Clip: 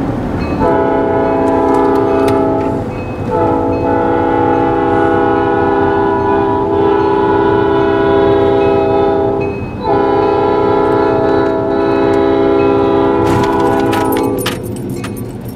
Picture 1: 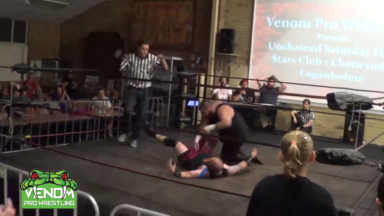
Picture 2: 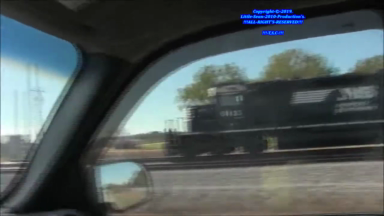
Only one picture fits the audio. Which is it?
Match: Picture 2